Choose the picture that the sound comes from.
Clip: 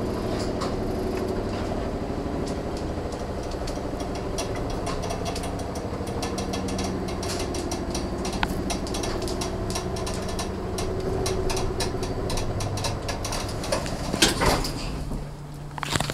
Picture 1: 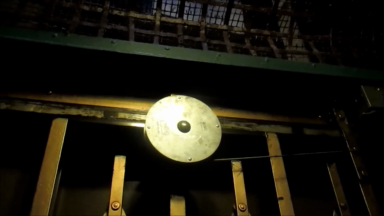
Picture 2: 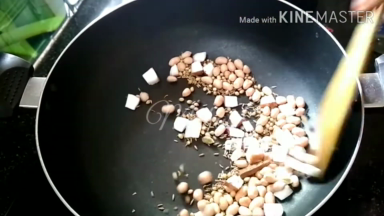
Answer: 1